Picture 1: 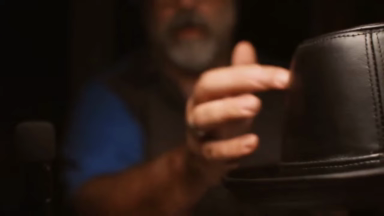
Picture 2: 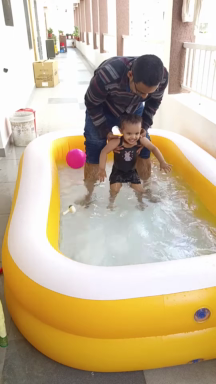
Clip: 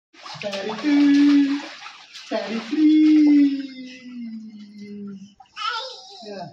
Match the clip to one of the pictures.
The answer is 2